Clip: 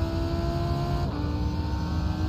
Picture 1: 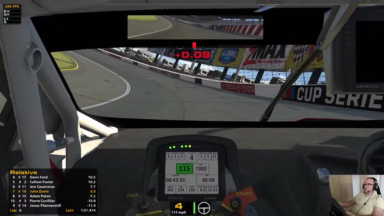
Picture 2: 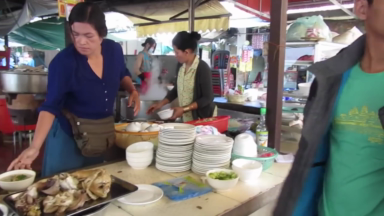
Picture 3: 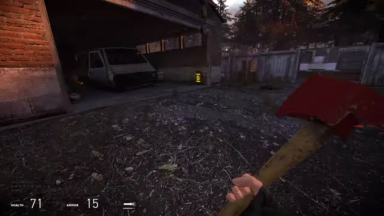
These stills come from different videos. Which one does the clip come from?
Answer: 1